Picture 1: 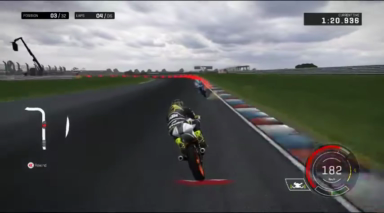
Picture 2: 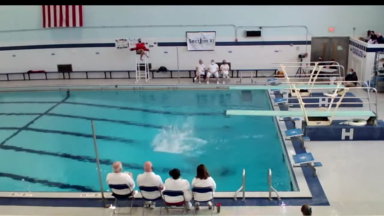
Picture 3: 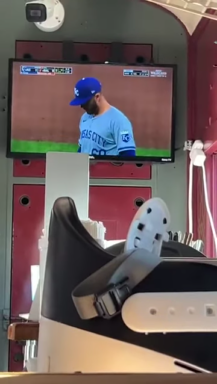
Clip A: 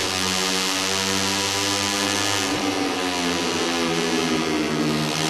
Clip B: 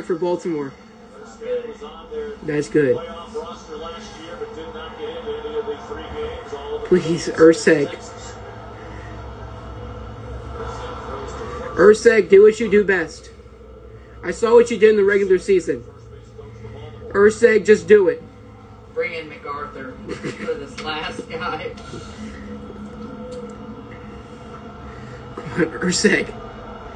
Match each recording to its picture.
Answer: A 1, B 3